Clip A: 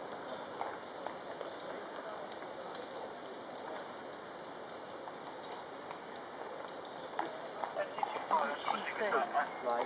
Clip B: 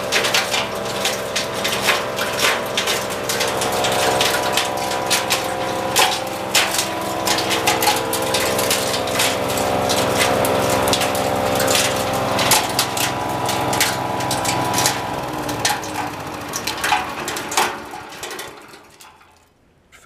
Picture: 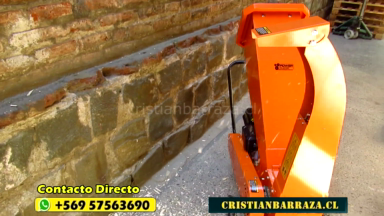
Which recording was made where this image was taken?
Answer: B